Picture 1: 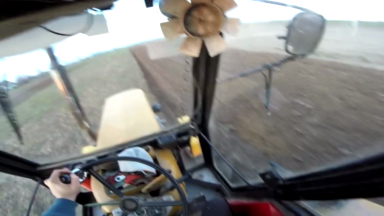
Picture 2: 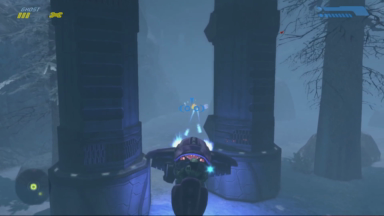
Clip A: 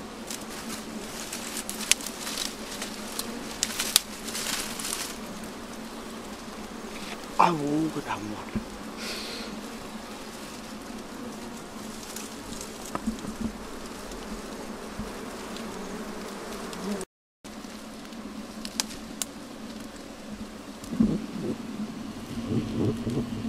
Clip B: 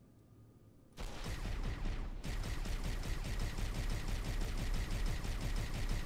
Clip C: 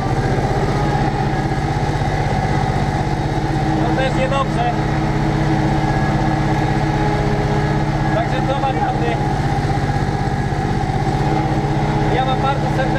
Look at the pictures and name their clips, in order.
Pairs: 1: C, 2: B